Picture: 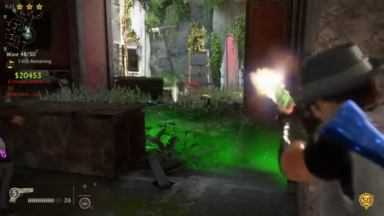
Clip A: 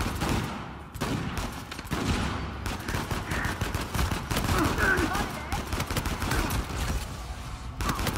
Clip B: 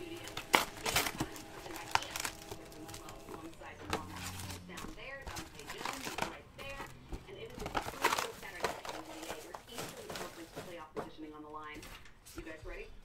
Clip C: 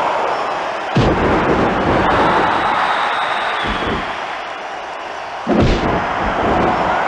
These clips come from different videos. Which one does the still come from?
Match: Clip A